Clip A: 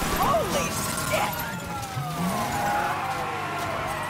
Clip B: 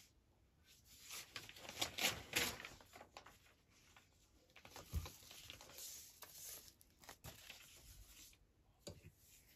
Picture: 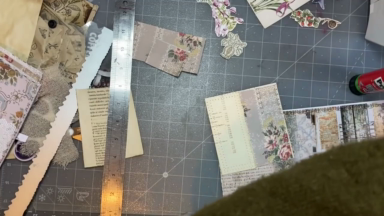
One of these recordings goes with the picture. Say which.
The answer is B